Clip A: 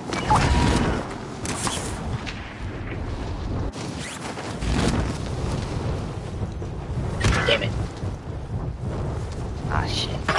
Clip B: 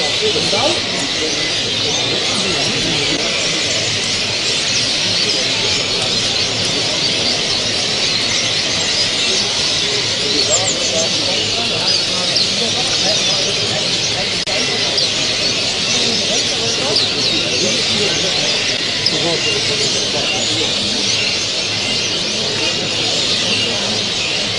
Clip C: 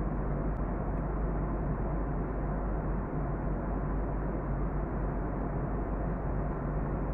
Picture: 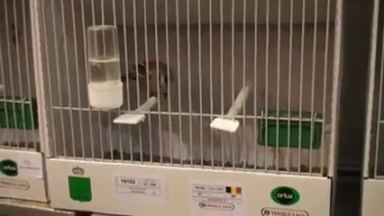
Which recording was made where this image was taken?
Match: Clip B